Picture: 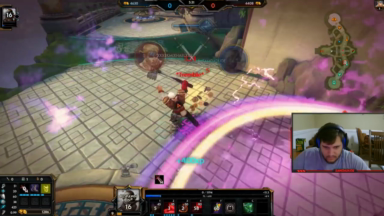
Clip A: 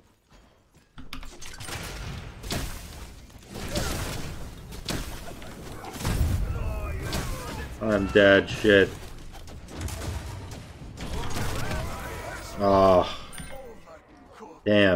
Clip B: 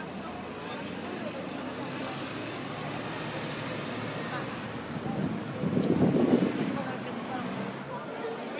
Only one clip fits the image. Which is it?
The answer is A